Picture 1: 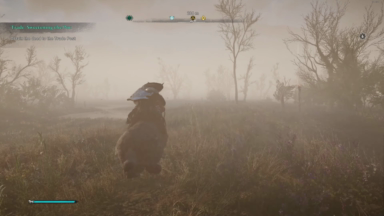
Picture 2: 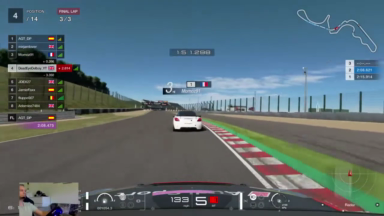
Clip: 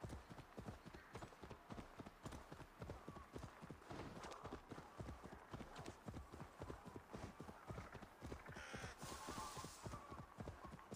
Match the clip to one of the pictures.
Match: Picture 1